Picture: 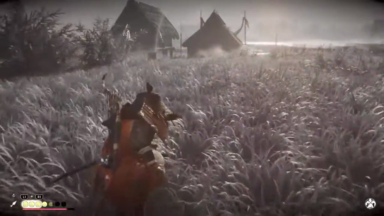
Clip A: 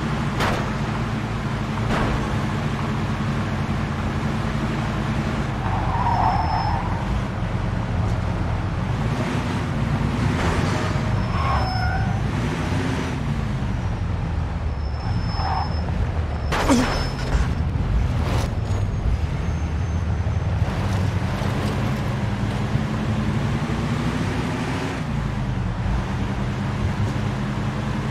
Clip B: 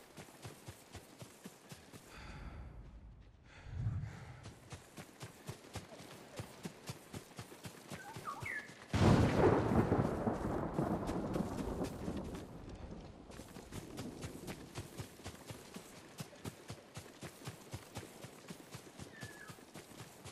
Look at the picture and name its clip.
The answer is B